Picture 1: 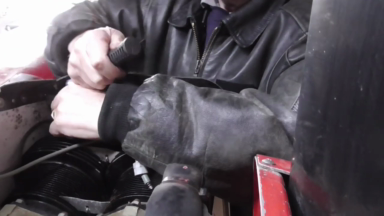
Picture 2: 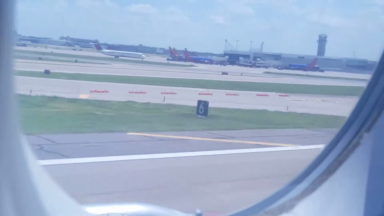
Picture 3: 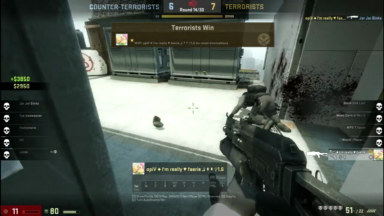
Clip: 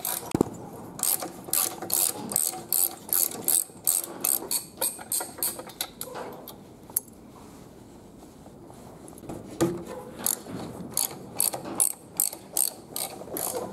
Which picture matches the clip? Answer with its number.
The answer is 1